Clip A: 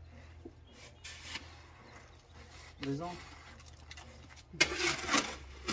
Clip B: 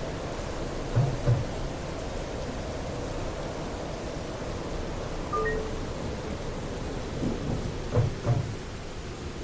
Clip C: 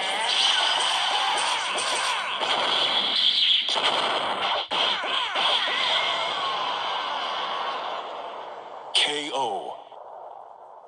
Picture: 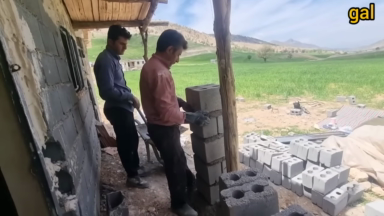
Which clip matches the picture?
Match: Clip A